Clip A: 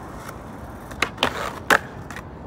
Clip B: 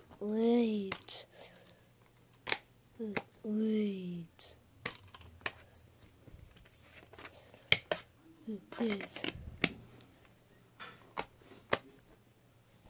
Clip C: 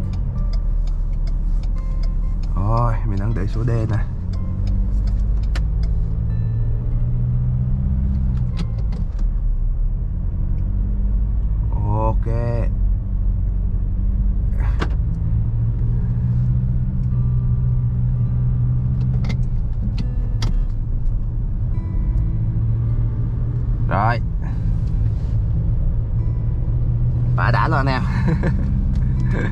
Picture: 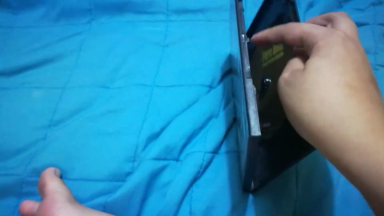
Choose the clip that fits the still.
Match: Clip B